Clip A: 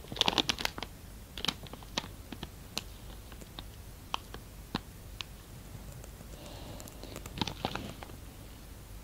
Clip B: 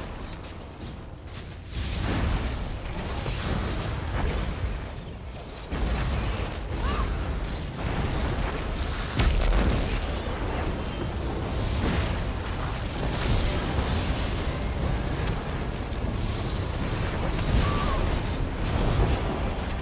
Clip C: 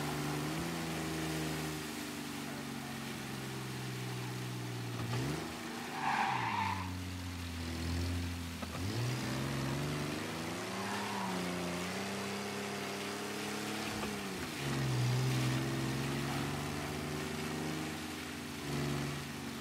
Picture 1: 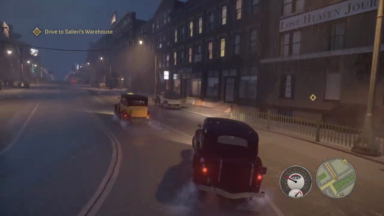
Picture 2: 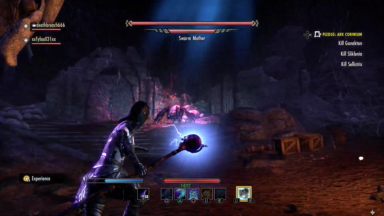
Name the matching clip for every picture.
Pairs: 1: C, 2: B